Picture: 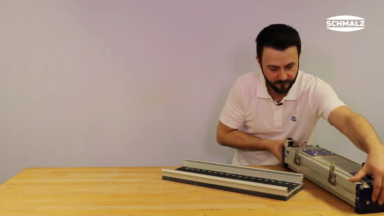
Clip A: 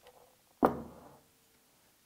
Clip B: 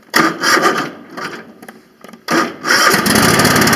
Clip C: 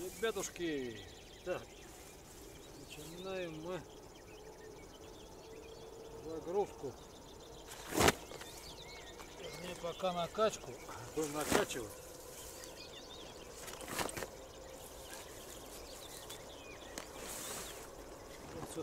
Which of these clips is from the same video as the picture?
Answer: A